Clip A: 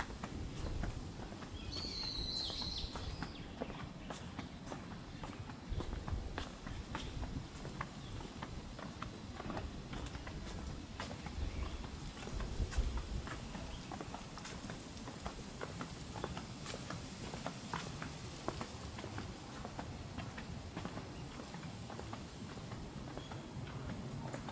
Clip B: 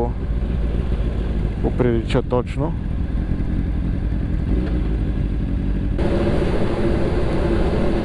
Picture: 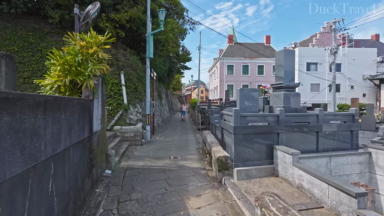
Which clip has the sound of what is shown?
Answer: A